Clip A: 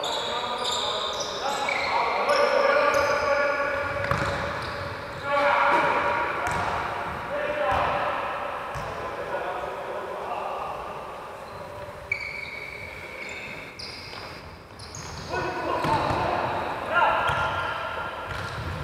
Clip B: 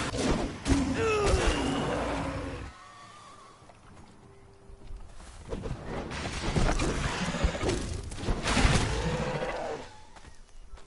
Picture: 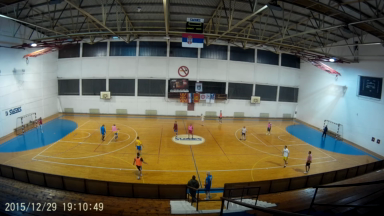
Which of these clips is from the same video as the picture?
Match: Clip A